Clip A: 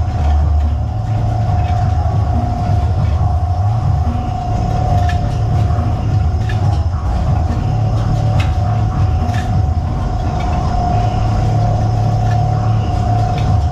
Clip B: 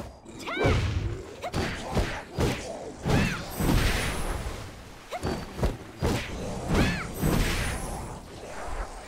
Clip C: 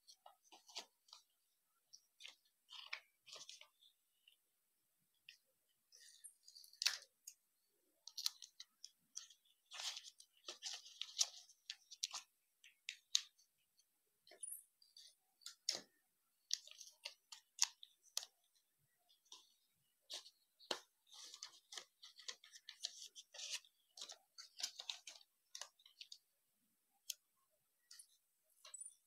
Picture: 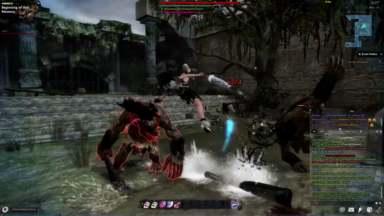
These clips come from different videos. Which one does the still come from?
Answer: B